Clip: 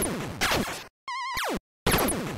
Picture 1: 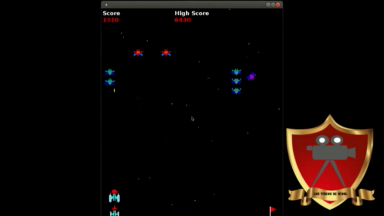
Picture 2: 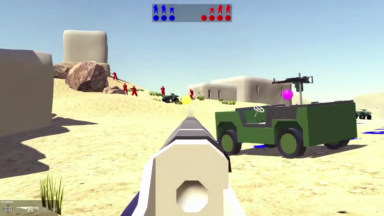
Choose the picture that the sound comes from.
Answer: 1